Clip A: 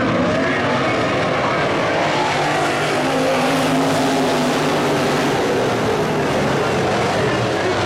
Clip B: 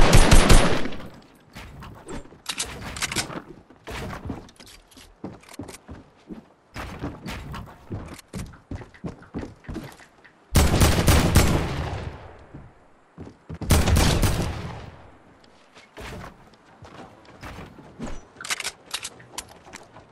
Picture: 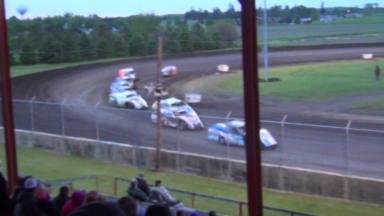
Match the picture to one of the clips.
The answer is A